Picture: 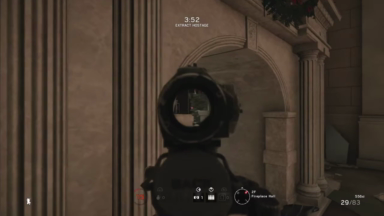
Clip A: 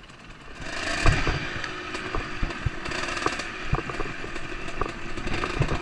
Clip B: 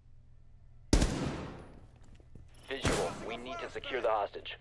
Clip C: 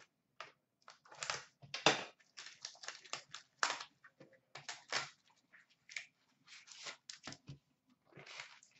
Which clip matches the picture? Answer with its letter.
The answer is B